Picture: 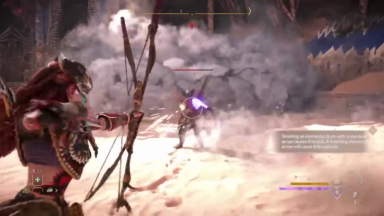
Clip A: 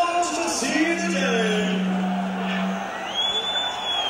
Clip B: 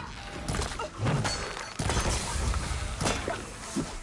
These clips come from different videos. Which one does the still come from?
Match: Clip B